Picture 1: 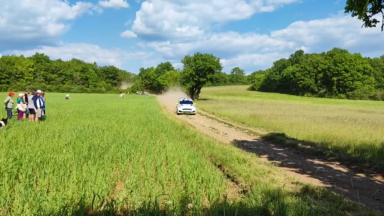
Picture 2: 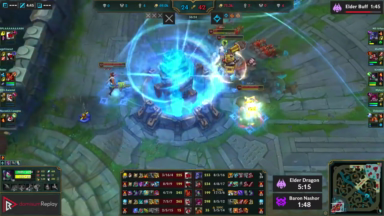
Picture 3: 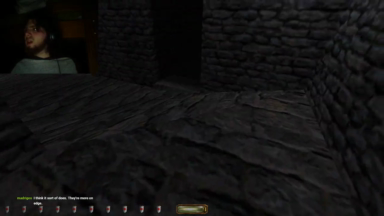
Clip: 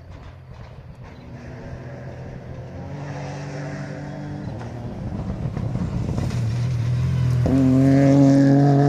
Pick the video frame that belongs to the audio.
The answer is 1